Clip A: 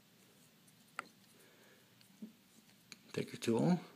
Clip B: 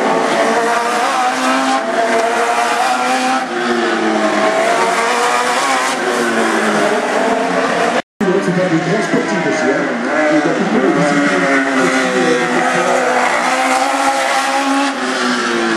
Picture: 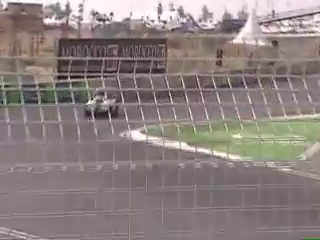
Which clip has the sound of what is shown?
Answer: B